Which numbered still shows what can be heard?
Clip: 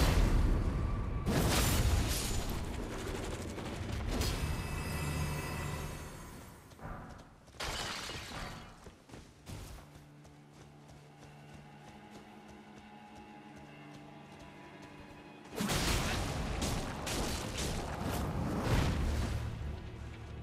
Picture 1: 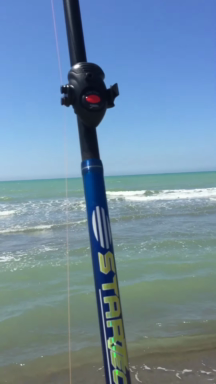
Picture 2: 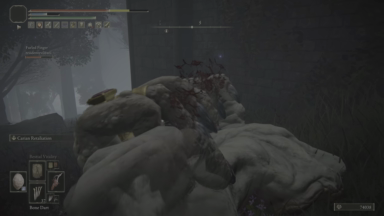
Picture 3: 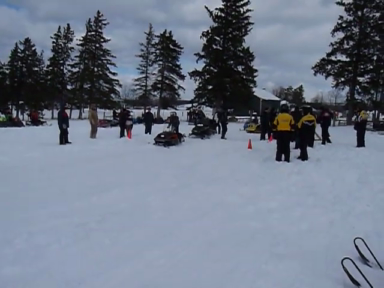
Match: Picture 2